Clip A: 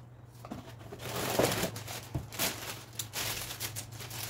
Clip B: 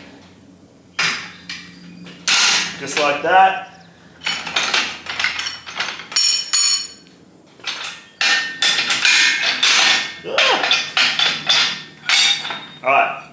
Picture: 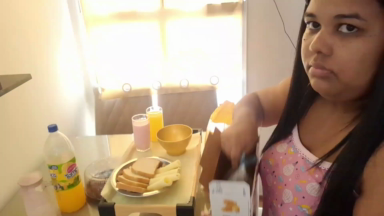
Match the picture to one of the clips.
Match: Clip A